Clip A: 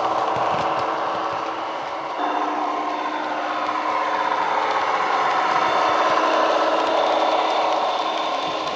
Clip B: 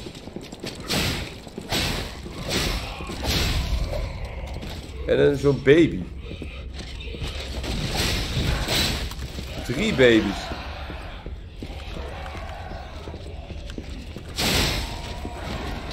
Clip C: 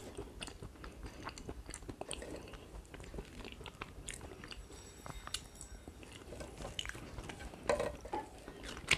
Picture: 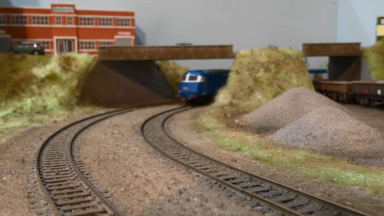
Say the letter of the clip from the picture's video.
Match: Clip A